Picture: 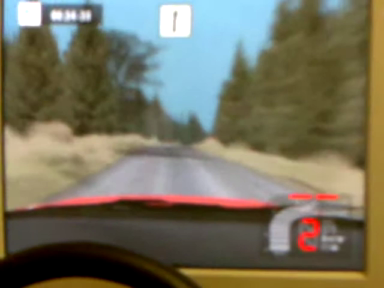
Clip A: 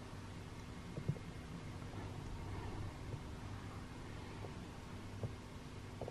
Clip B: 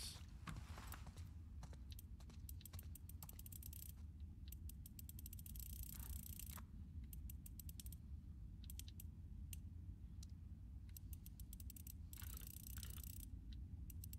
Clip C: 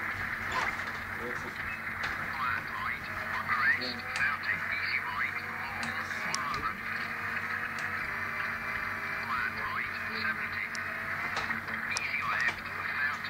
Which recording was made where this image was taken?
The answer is C